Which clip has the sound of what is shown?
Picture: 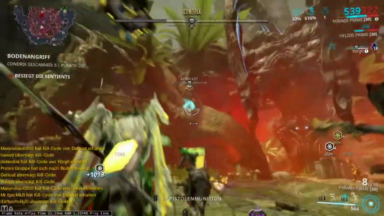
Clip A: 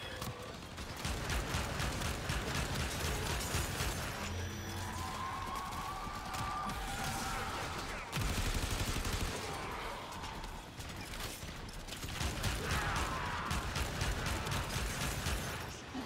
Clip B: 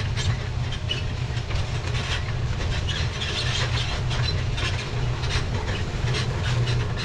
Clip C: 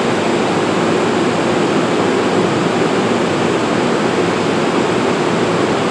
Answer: A